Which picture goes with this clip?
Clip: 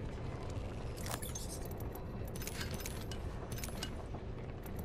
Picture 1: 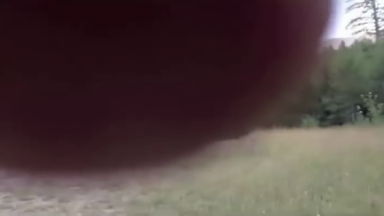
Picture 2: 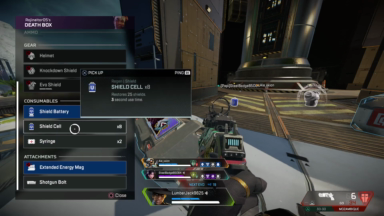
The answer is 2